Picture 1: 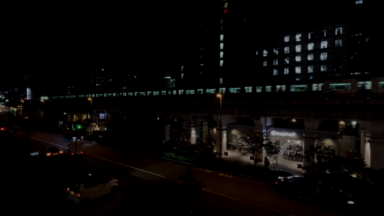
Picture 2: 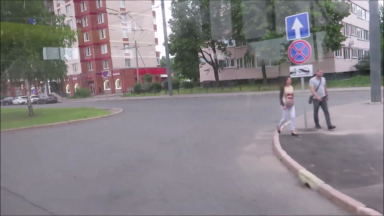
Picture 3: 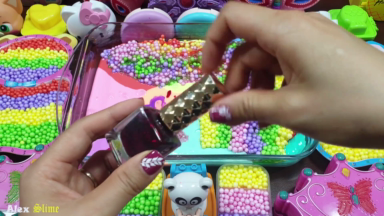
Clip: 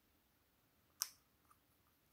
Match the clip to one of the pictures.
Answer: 3